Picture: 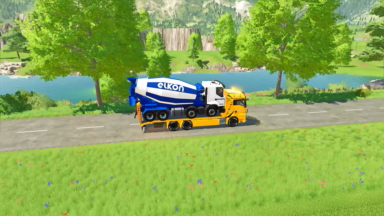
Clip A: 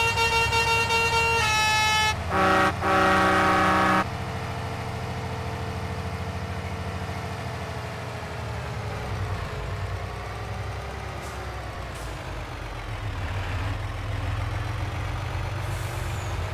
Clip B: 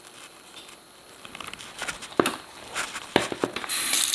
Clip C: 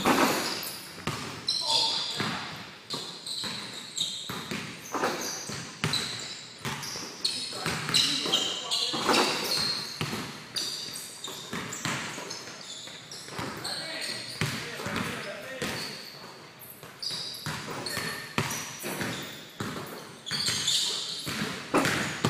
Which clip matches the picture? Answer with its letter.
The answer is A